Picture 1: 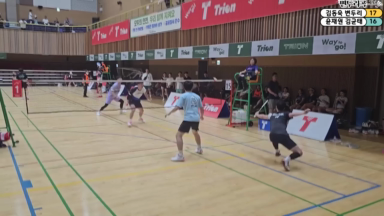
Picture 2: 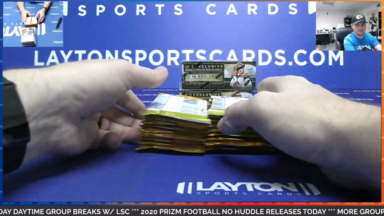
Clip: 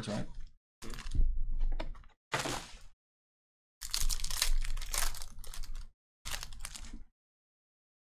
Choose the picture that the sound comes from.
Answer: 2